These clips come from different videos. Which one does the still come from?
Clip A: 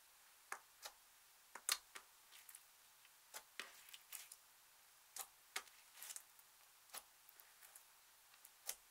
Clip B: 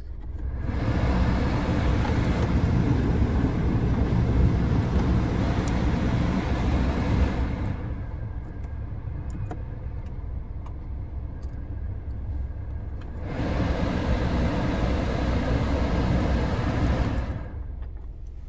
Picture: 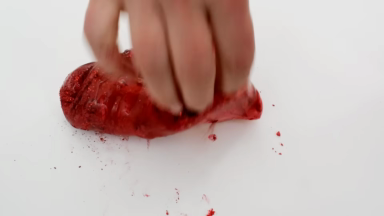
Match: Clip A